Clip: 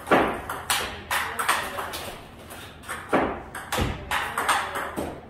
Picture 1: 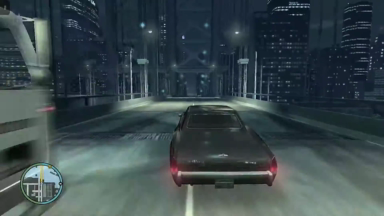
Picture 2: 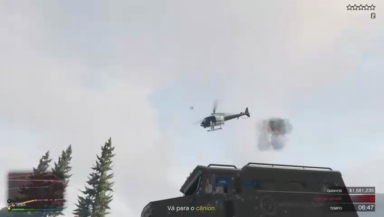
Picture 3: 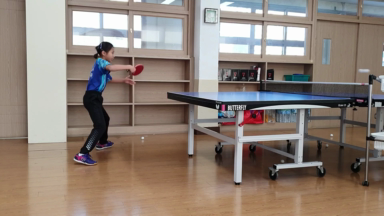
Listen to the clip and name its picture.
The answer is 3